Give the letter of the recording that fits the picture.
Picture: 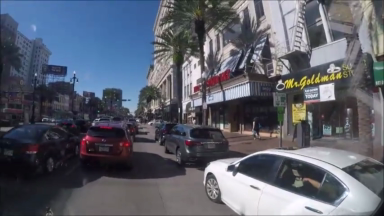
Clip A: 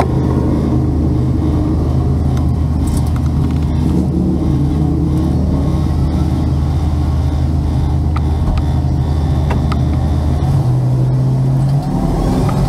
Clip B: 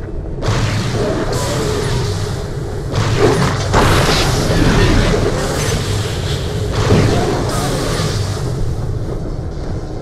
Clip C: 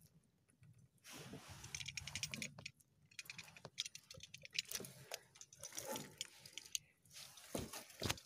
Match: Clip A